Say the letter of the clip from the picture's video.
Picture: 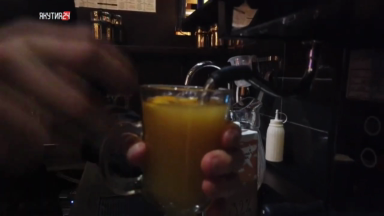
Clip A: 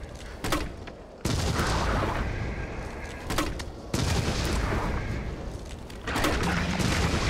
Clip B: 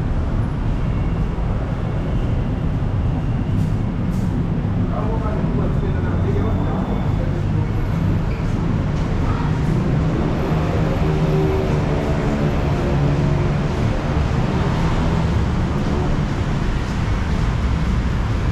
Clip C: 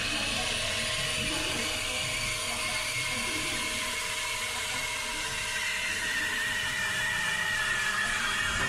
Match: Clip C